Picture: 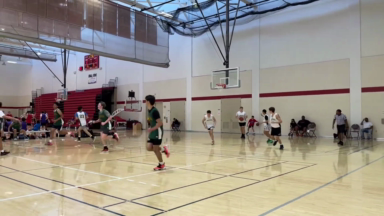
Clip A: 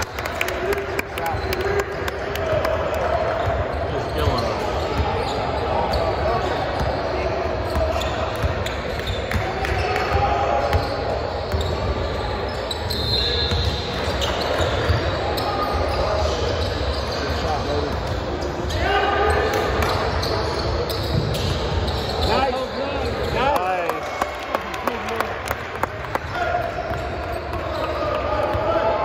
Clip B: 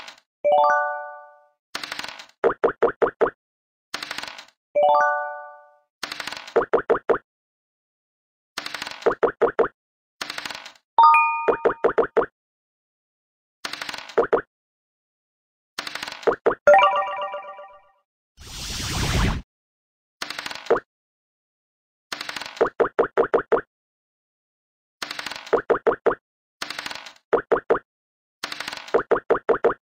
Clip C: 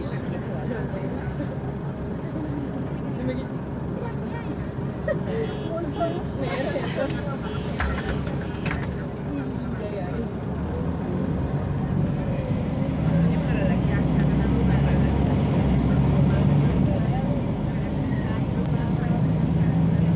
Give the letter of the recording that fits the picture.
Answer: A